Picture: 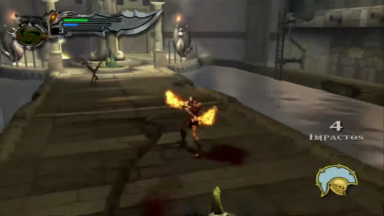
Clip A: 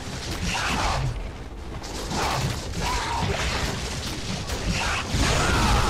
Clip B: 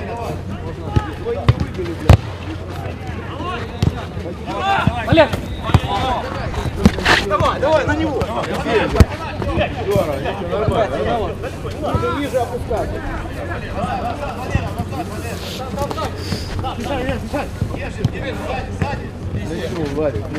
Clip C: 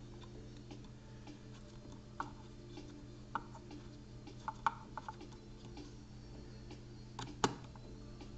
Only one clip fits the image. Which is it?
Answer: A